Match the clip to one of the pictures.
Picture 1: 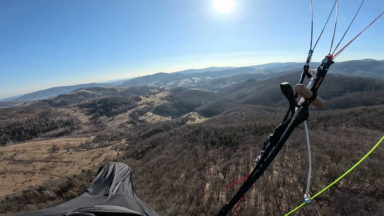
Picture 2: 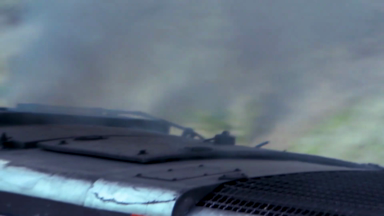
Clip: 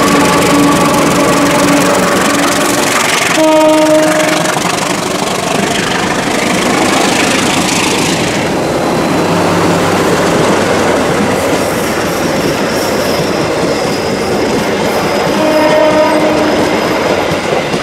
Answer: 2